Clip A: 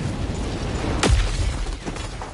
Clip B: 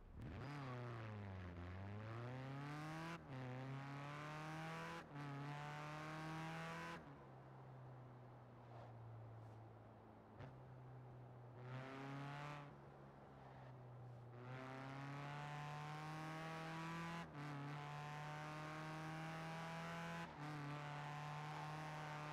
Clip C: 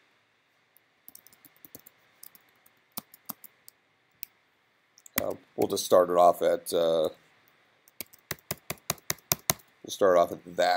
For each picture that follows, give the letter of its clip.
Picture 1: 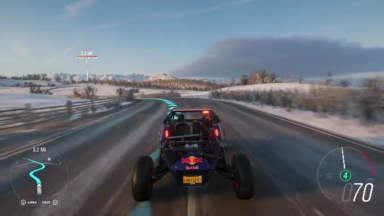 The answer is B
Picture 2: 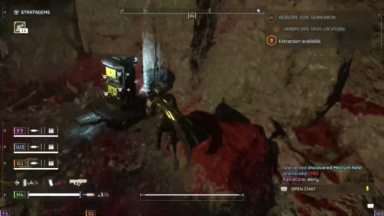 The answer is A